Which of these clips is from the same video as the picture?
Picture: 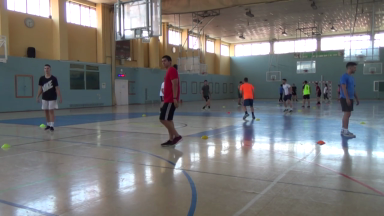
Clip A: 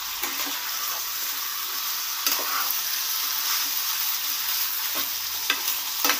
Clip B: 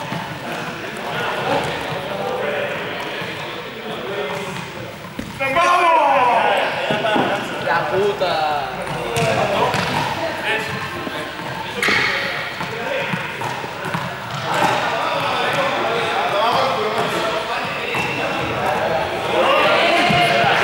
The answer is B